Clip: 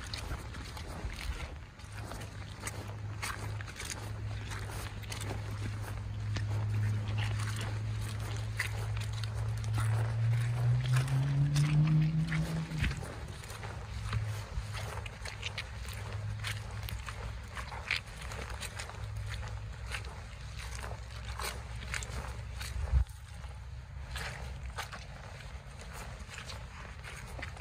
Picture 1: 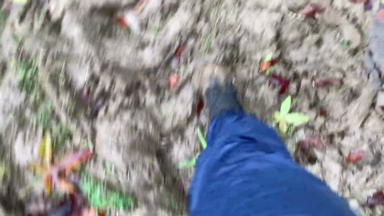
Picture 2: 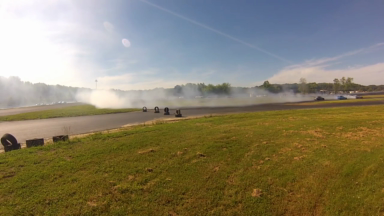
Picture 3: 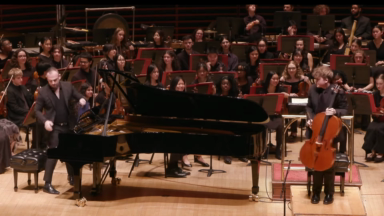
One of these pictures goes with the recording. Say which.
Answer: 1